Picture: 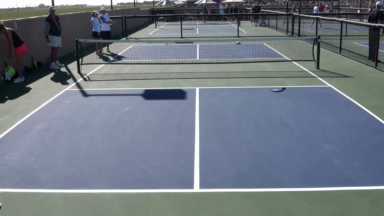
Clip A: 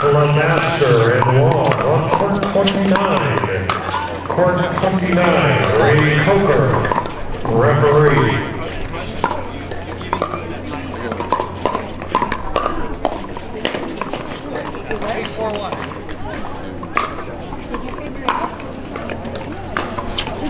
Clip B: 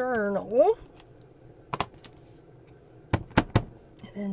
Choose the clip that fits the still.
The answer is A